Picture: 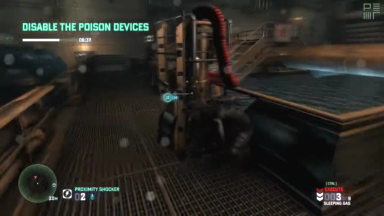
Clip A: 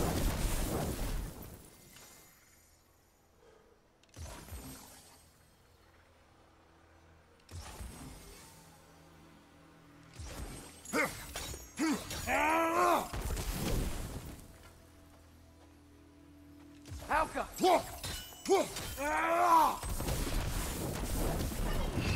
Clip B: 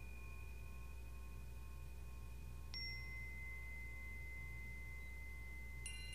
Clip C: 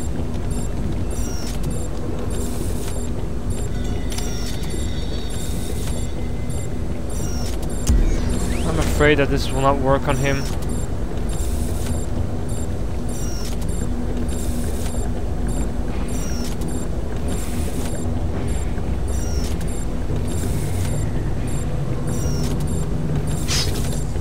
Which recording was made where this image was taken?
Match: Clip C